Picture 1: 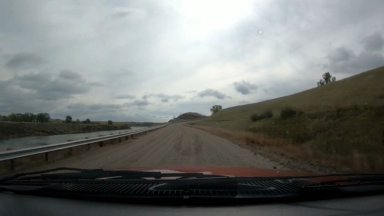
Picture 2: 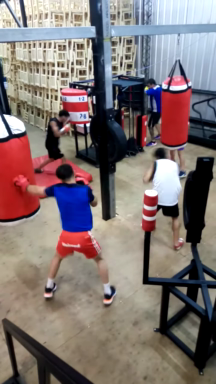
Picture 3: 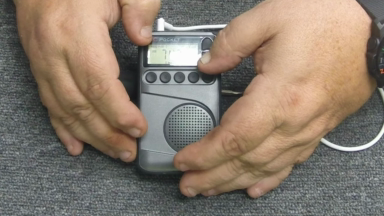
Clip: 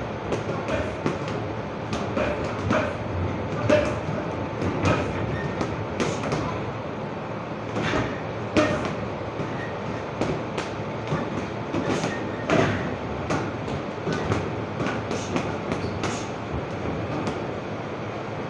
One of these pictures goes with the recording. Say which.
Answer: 2